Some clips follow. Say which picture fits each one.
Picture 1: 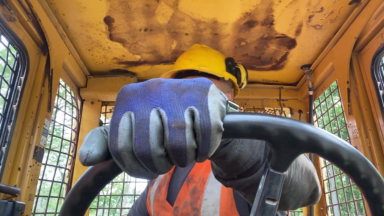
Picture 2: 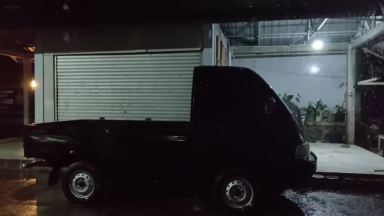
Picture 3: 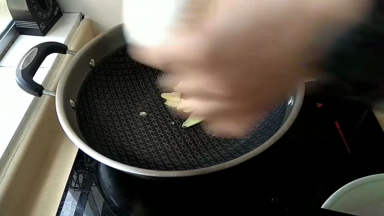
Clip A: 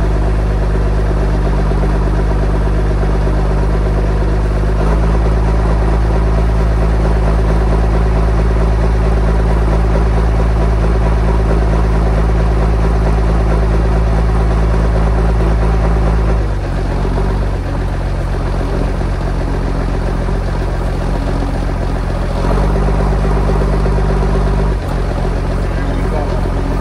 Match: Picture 1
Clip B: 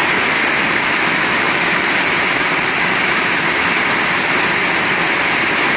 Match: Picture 2